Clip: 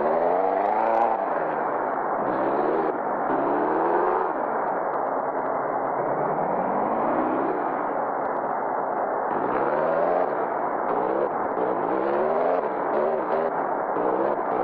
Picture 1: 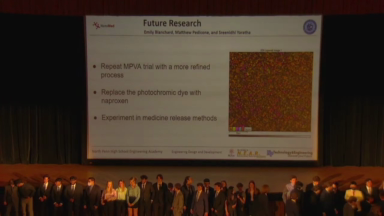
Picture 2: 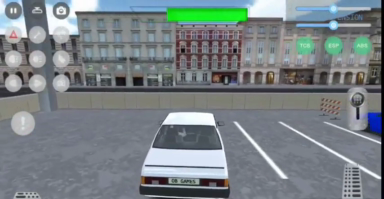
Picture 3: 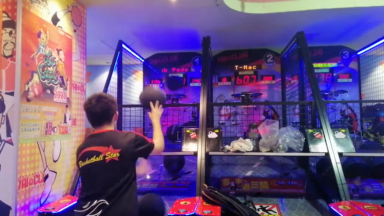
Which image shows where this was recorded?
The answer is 2